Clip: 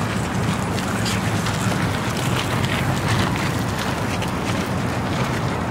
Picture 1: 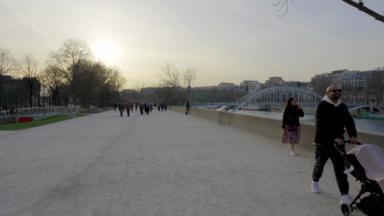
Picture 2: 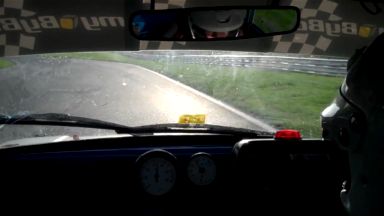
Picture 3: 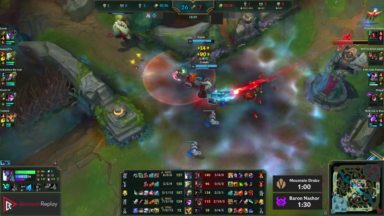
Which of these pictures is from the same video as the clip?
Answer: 1